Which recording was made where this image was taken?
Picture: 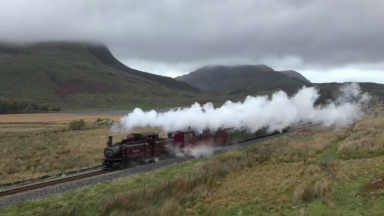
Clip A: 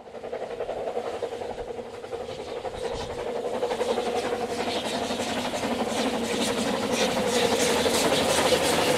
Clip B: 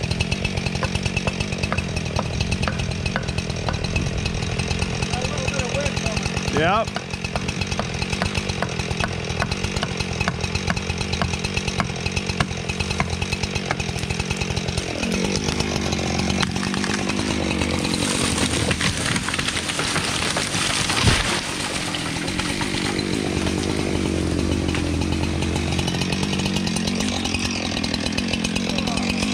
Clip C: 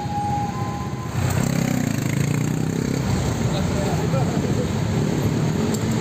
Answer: A